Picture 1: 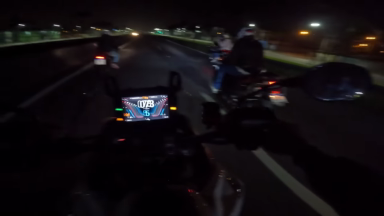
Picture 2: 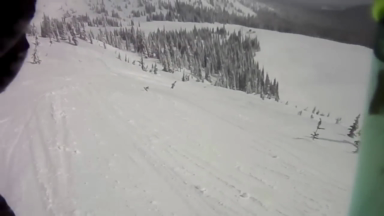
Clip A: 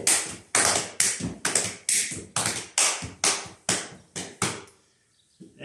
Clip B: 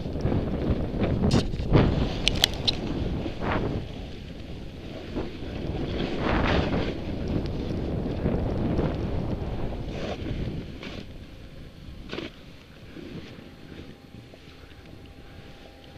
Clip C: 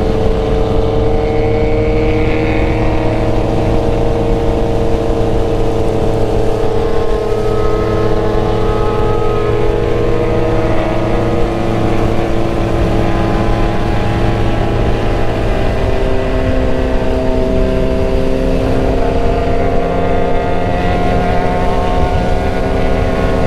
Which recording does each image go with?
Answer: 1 C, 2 B